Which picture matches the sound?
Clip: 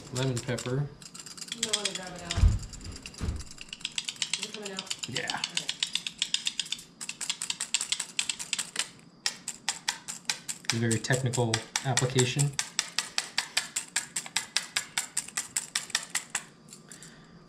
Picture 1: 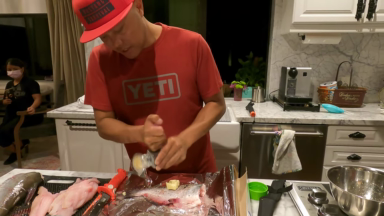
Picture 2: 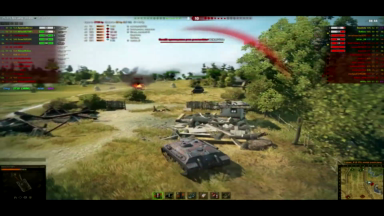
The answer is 1